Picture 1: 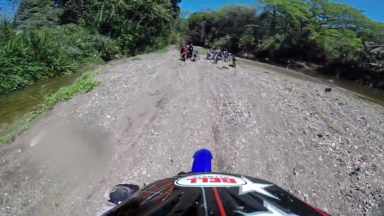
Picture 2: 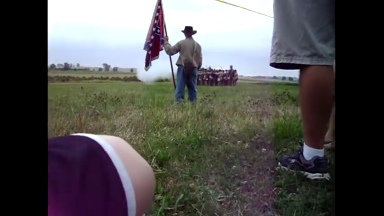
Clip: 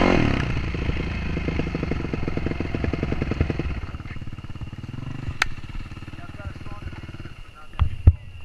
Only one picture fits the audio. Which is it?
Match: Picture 1